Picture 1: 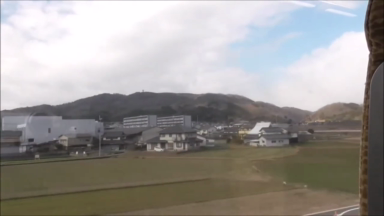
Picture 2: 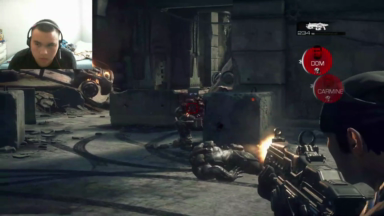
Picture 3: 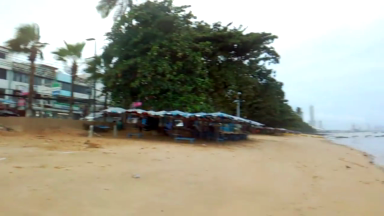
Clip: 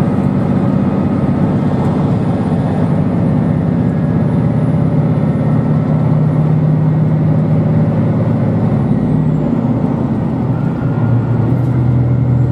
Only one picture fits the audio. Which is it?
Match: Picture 1